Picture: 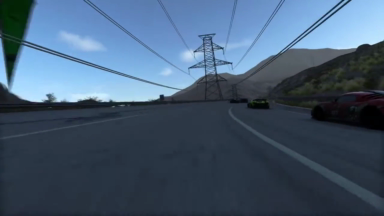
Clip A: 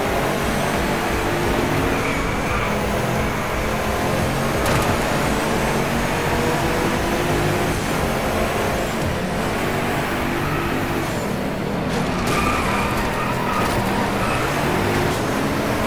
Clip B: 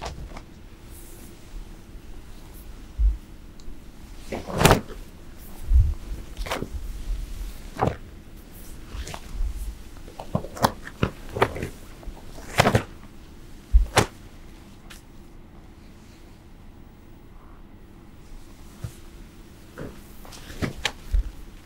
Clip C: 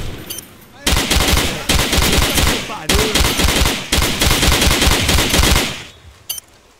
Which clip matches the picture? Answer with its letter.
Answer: A